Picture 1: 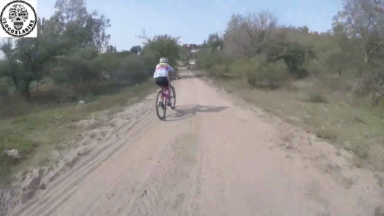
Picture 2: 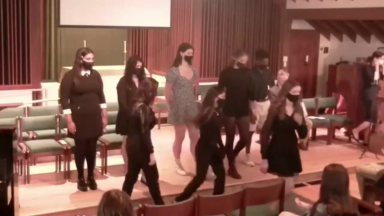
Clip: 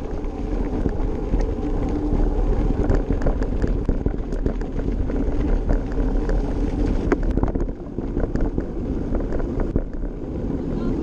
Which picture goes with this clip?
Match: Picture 1